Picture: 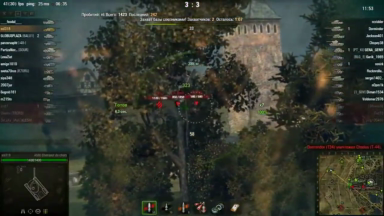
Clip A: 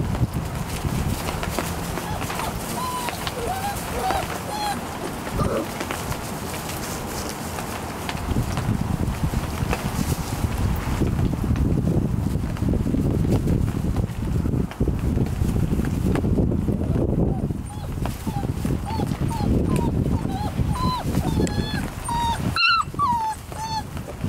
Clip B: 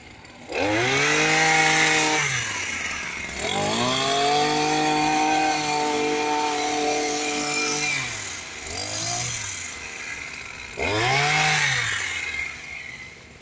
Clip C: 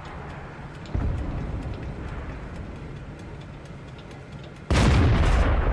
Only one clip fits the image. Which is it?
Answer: C